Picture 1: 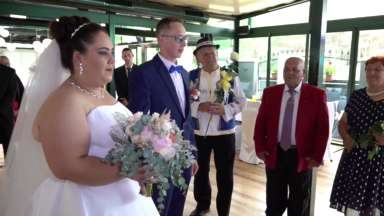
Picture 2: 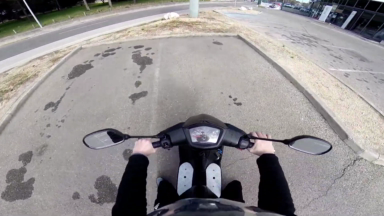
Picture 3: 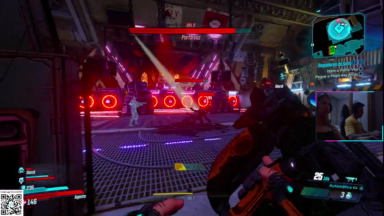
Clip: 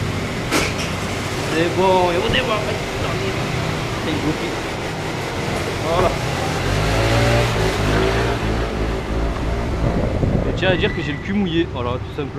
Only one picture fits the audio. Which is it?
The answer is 2